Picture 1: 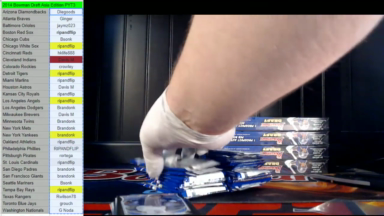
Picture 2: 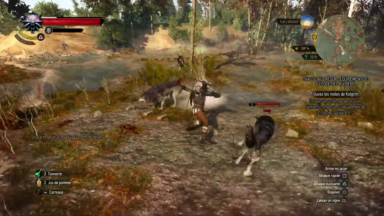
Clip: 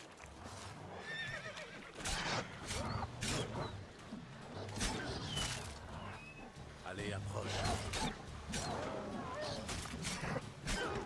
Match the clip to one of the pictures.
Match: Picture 2